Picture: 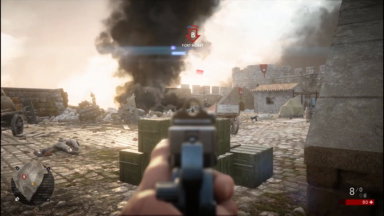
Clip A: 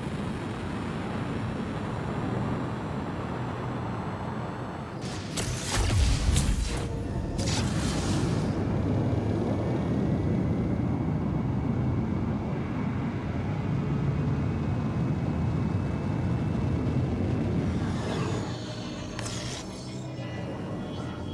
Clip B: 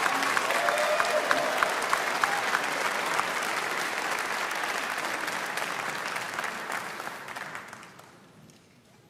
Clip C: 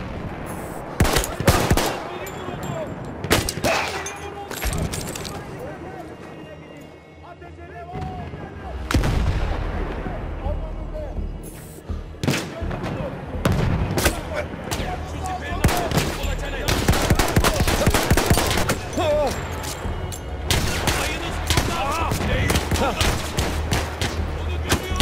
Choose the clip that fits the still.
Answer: C